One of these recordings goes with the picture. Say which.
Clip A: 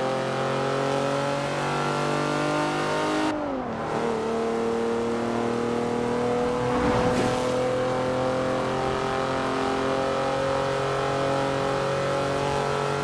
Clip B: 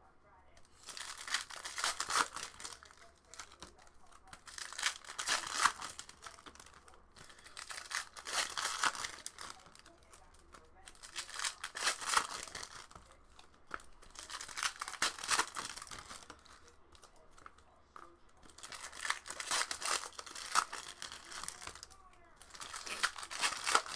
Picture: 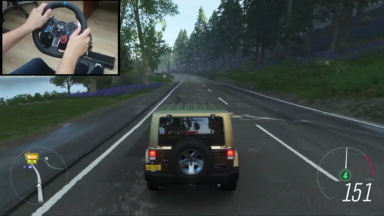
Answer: A